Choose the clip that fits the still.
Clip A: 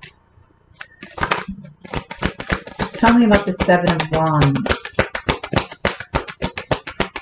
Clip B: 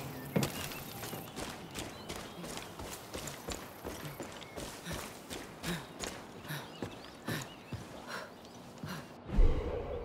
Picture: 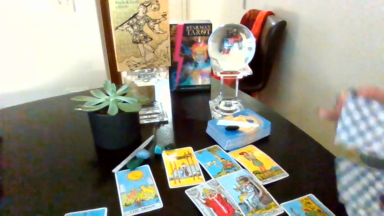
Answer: A